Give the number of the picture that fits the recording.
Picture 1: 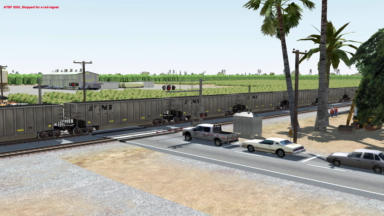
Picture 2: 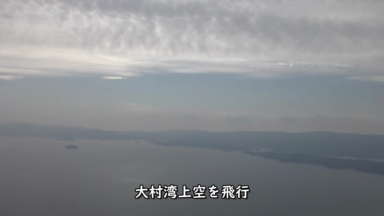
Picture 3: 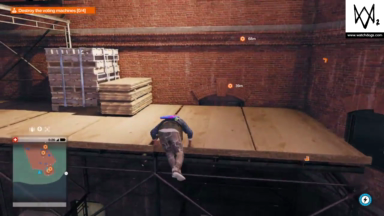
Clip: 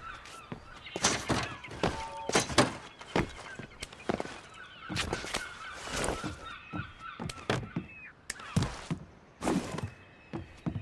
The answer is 3